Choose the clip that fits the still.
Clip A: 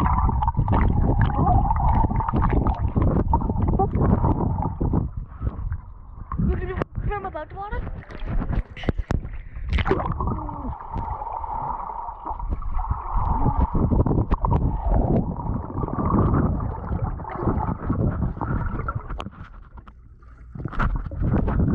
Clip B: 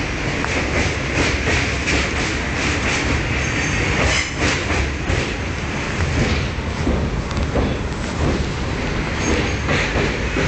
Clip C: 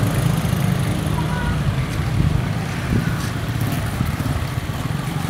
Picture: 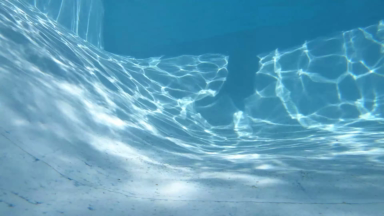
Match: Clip A